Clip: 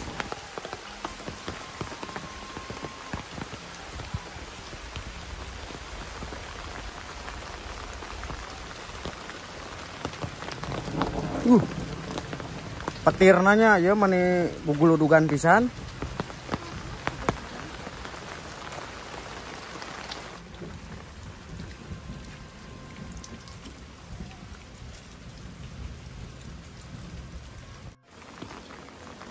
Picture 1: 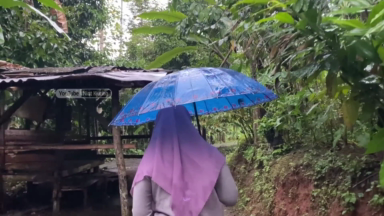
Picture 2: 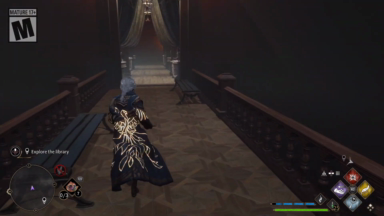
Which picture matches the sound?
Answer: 1